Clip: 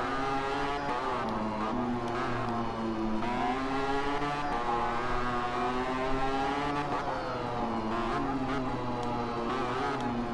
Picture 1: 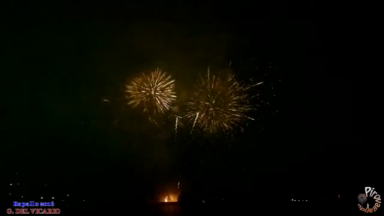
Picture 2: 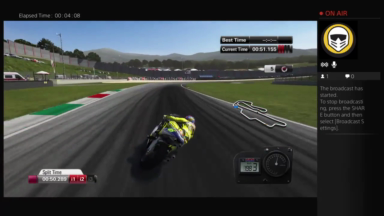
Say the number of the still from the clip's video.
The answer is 2